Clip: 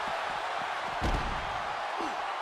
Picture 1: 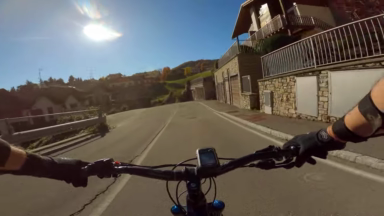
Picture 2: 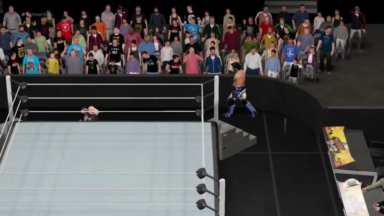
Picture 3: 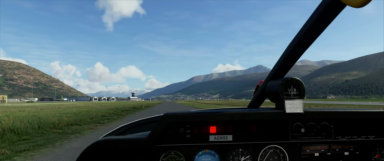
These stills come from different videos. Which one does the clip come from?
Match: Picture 2